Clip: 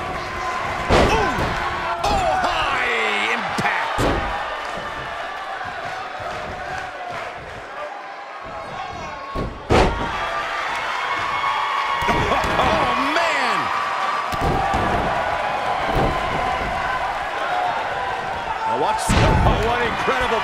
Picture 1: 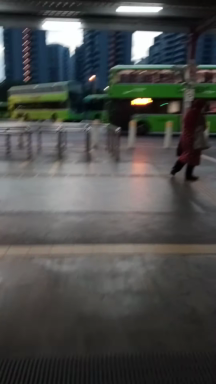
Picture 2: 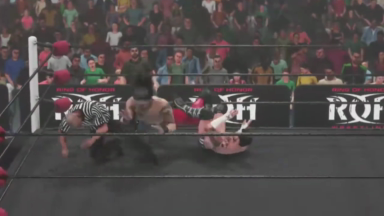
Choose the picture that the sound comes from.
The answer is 2